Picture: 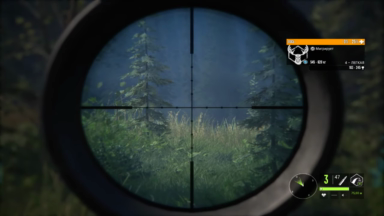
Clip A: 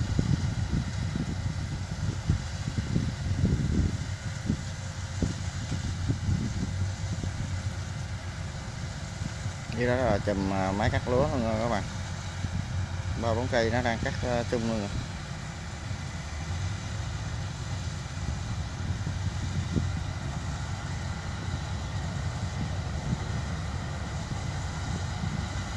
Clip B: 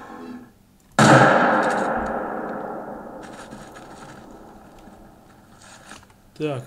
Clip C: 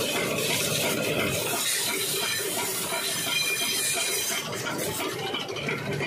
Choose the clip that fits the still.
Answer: B